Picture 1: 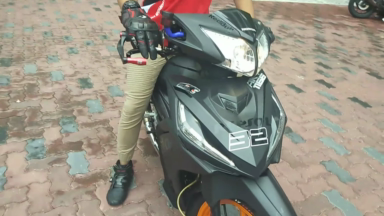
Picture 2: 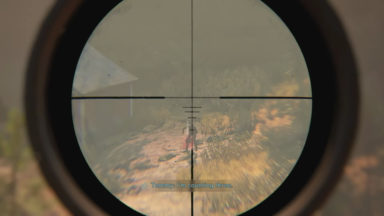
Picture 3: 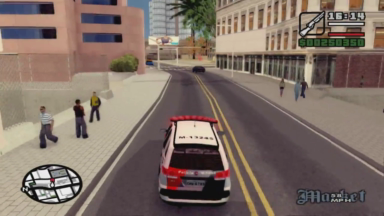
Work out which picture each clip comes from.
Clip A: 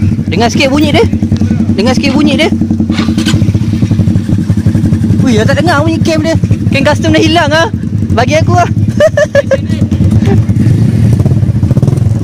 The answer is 1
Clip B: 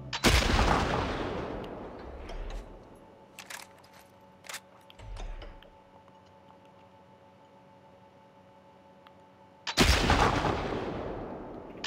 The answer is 2